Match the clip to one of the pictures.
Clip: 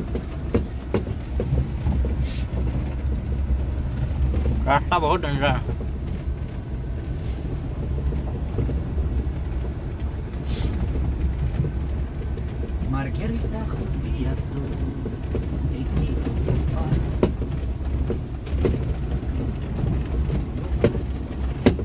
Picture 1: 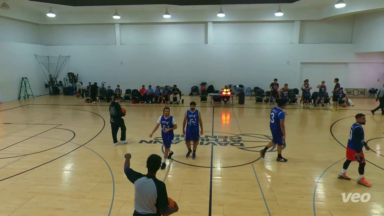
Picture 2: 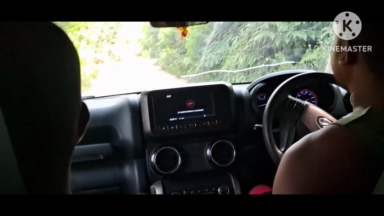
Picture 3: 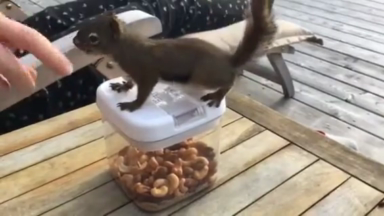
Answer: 2